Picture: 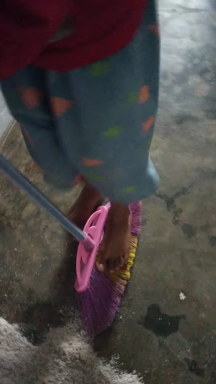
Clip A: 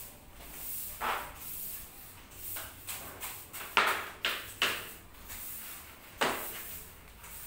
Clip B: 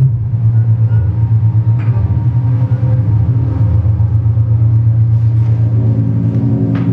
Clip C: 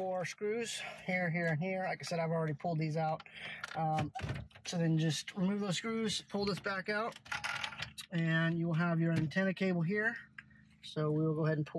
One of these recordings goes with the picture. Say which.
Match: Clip A